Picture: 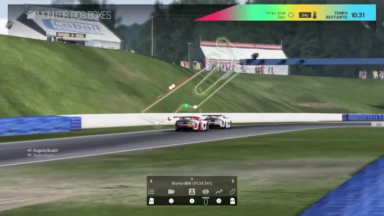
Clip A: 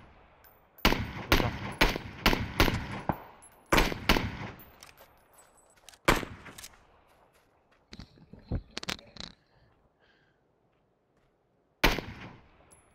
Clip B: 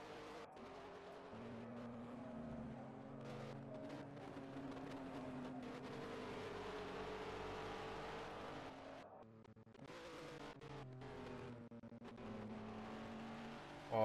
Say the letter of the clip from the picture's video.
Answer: B